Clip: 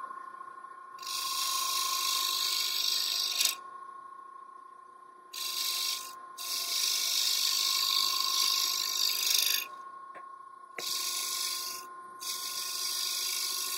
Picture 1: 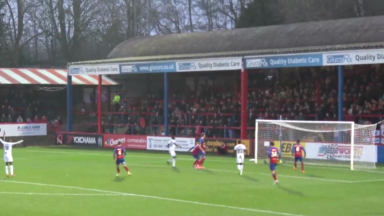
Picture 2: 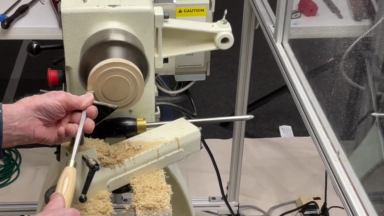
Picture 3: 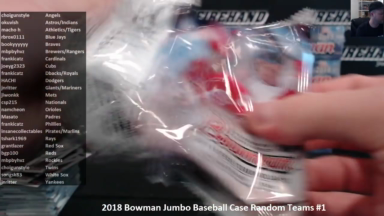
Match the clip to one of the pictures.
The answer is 2